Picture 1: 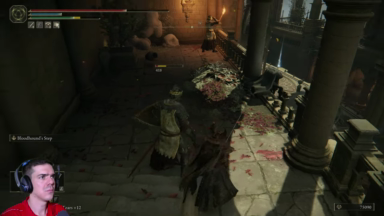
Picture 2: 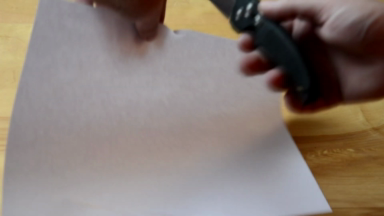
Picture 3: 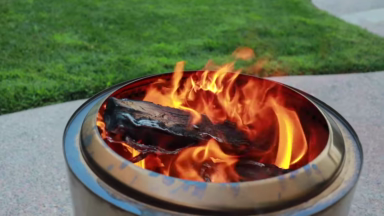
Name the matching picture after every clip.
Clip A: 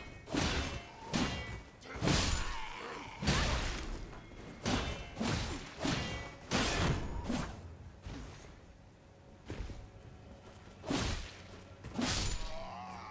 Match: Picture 1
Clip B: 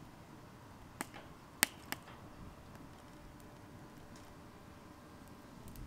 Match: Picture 3